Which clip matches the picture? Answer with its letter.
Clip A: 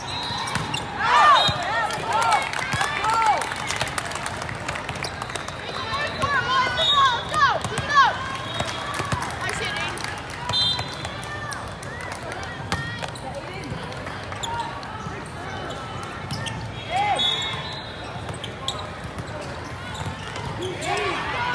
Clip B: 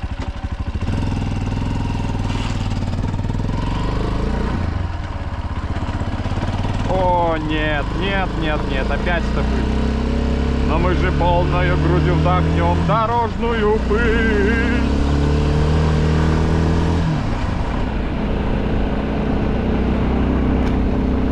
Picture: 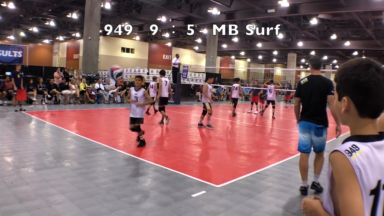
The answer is A